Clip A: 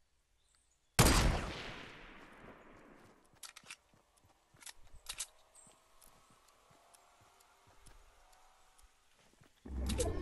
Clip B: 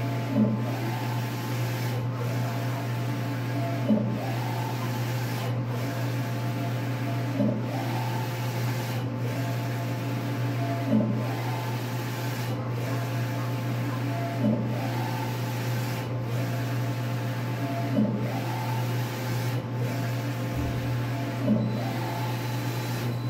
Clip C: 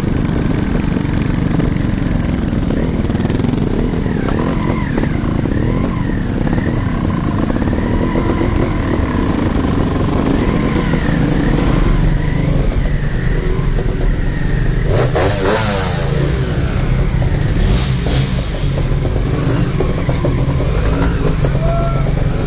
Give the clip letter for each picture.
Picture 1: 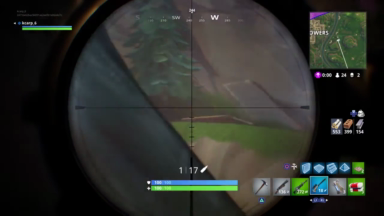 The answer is A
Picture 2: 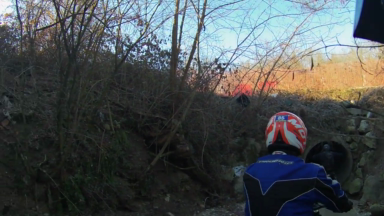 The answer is C